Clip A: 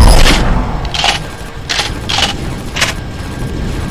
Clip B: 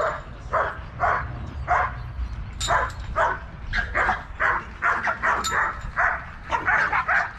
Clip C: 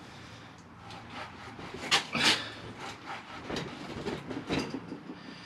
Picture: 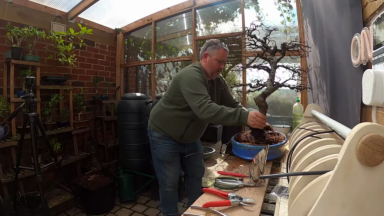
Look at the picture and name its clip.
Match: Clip C